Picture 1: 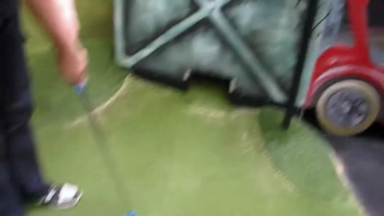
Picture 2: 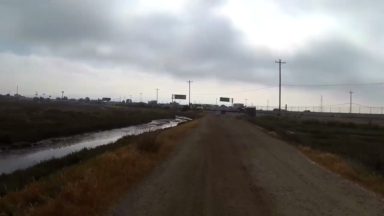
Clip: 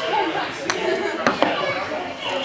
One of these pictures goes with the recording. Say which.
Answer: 1